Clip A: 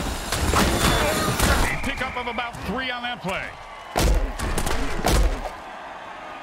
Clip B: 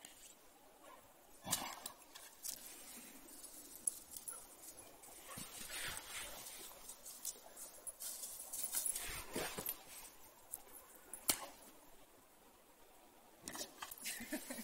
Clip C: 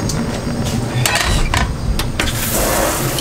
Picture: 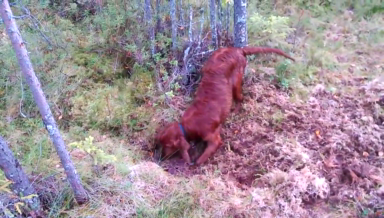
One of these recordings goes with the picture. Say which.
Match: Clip B